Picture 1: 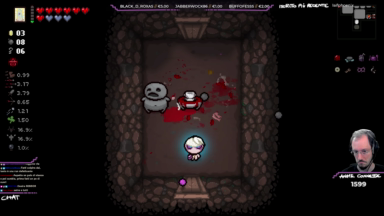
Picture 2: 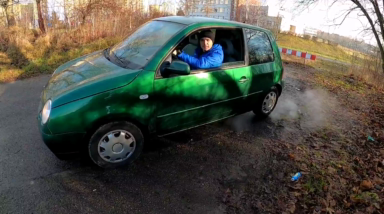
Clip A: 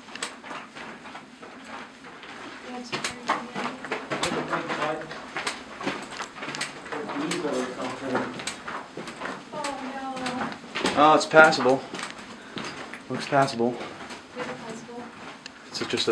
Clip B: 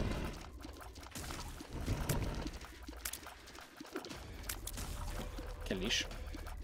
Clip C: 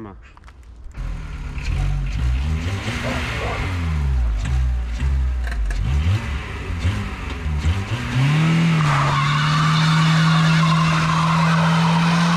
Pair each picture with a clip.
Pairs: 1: B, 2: C